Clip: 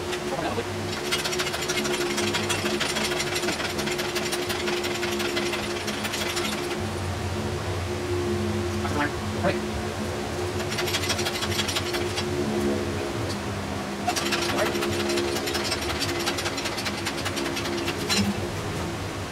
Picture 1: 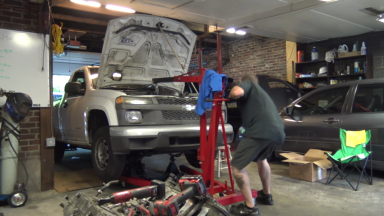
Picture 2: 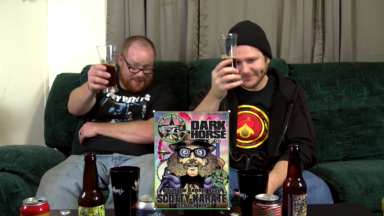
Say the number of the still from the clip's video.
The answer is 1